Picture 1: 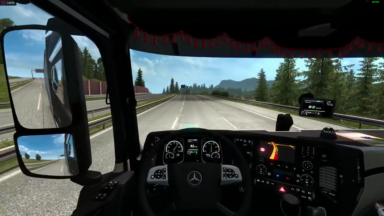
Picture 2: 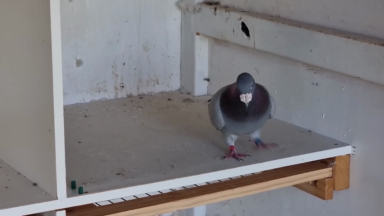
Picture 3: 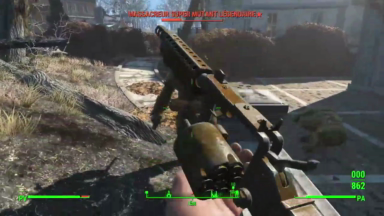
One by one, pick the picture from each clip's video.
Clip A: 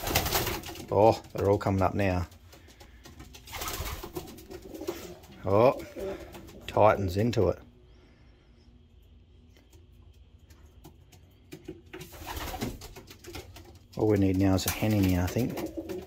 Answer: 2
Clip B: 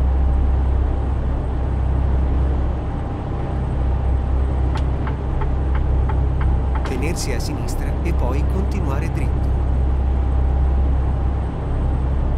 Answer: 1